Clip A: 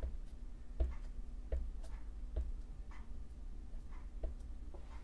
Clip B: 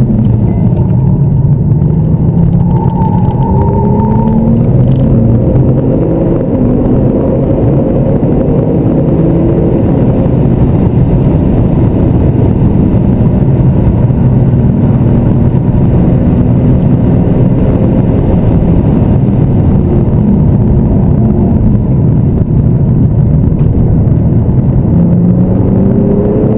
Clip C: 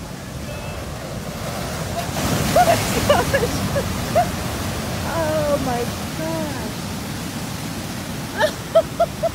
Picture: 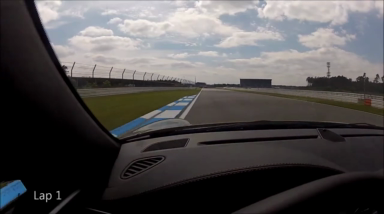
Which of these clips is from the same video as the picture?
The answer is B